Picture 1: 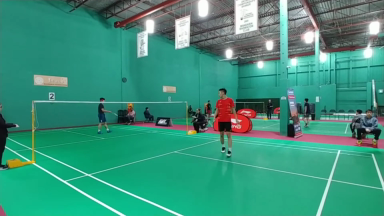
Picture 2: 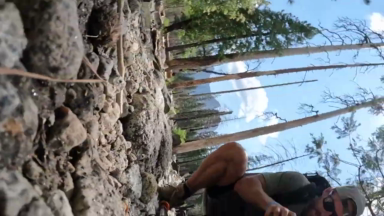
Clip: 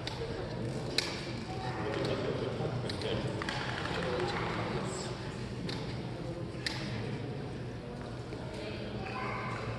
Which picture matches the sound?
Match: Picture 1